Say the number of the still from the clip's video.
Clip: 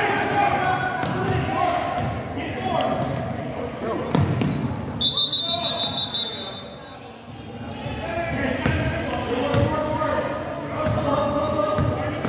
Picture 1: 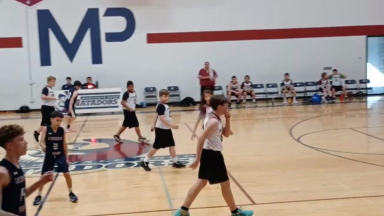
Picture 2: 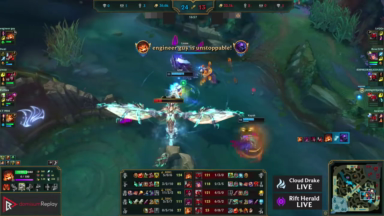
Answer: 1